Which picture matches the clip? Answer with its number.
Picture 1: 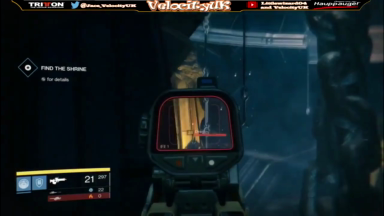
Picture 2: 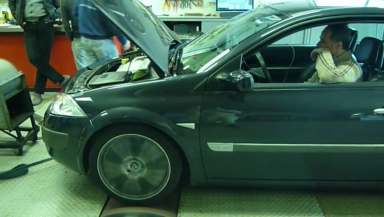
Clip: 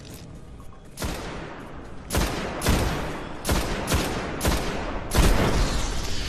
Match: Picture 1